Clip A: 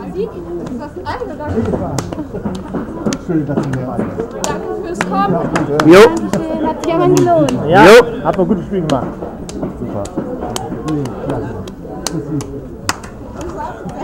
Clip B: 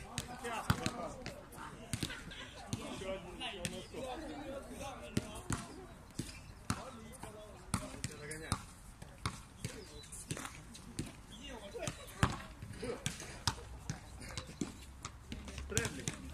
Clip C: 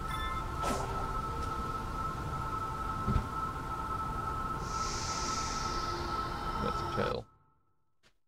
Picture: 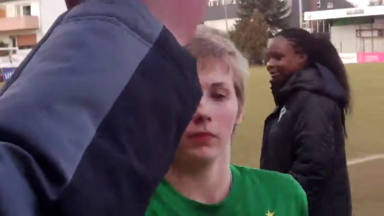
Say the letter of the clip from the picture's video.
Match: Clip A